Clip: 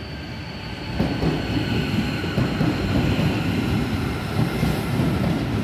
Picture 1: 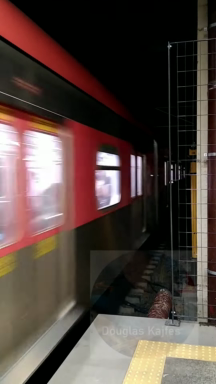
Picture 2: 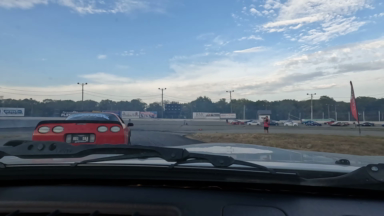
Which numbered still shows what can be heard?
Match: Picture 1